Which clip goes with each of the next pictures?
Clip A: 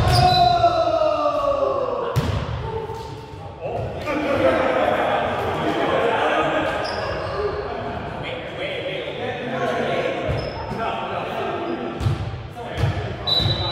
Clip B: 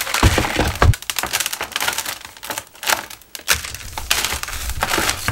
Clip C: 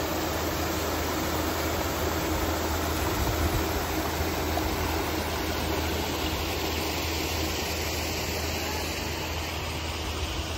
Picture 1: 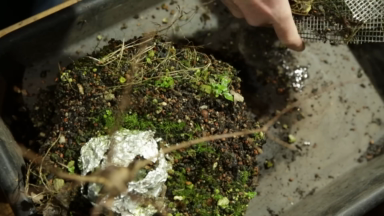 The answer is B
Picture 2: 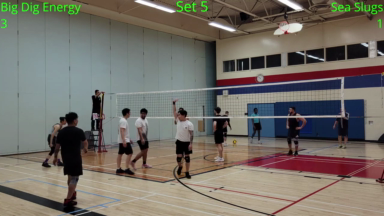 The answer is A